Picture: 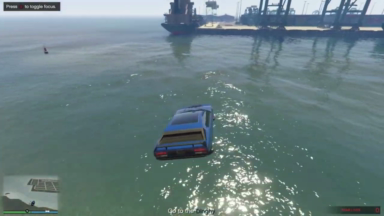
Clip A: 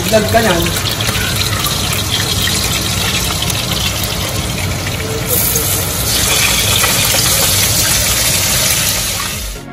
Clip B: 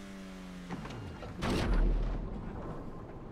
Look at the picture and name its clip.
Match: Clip B